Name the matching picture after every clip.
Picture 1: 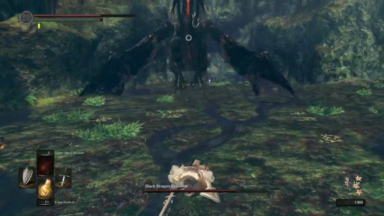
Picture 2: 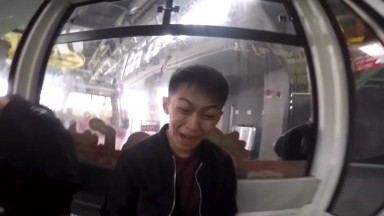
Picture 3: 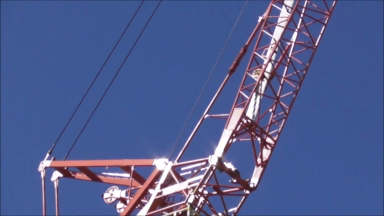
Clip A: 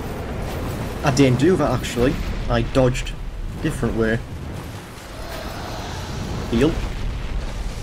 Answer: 1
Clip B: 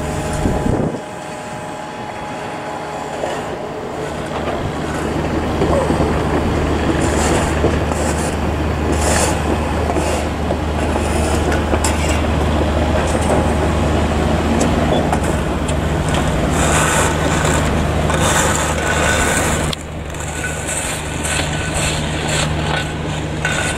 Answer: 3